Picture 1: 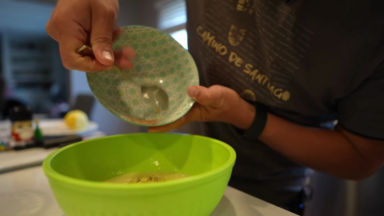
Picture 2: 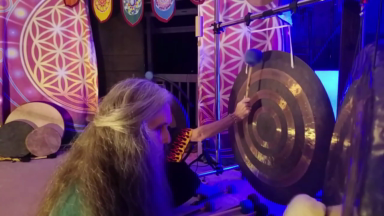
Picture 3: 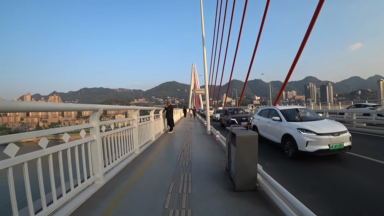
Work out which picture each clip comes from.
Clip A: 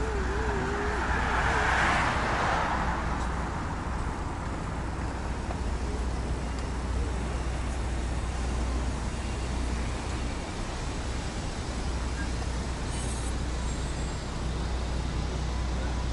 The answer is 3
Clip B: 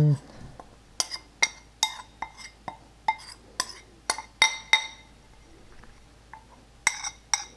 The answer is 1